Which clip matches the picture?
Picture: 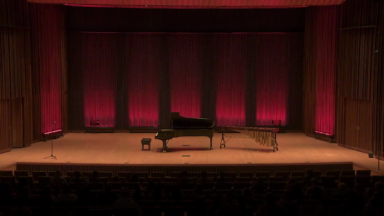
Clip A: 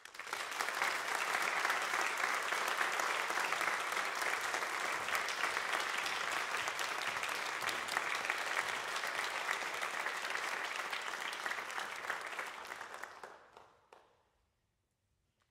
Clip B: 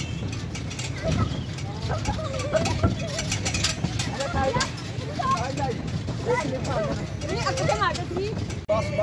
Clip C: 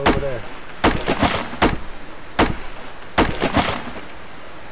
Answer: A